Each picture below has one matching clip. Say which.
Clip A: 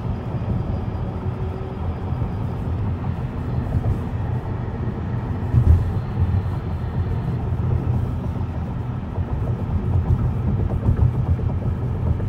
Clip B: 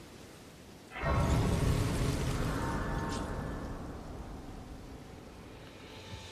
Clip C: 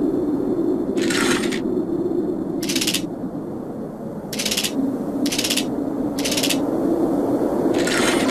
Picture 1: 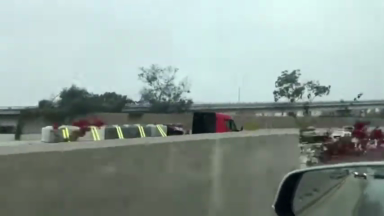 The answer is A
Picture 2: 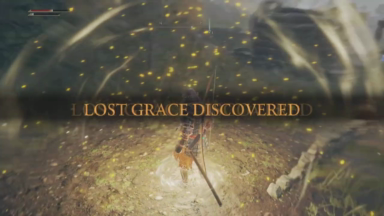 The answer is B